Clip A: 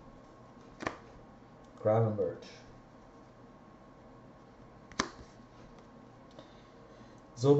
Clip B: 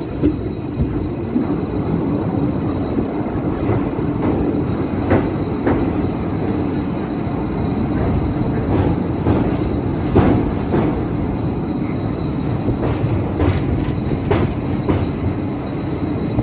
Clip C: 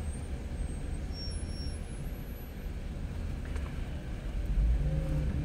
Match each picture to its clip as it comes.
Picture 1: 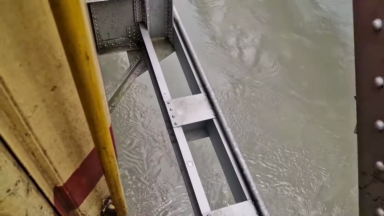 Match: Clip B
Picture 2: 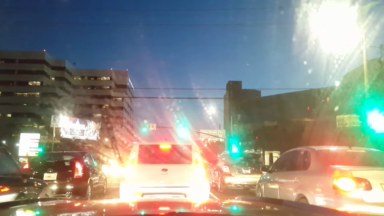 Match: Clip C